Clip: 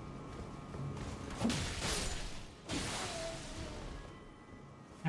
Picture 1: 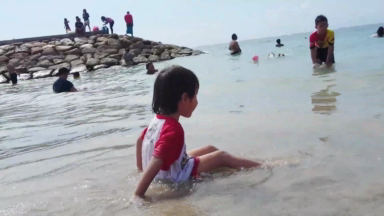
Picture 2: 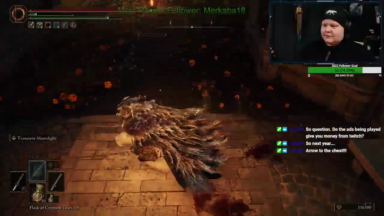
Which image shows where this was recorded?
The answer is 2